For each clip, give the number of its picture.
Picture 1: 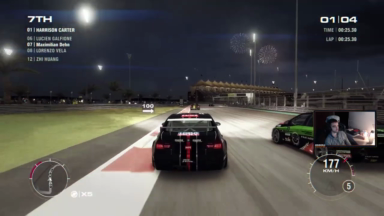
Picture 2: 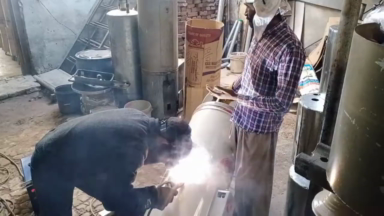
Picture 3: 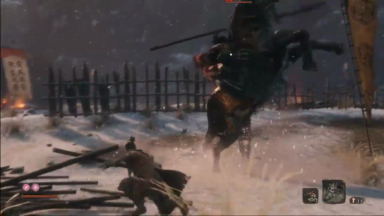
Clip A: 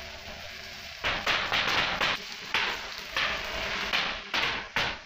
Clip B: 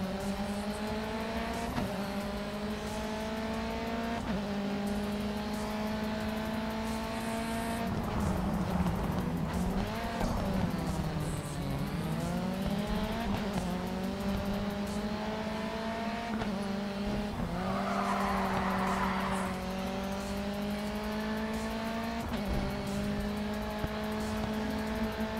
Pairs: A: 2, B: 1